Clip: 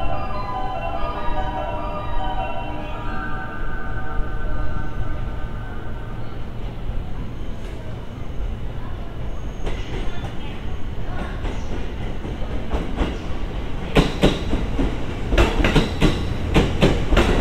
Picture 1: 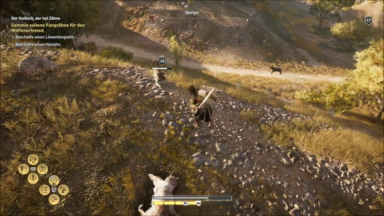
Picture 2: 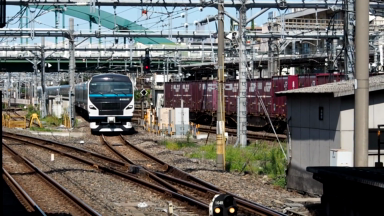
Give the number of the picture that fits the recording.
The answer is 2